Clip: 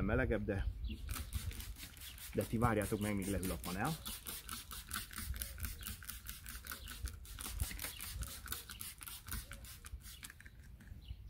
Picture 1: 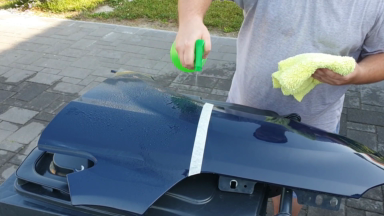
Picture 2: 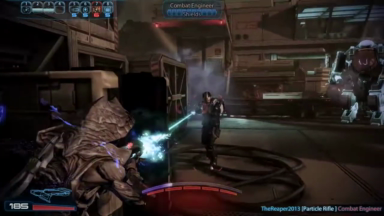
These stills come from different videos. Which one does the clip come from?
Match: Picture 1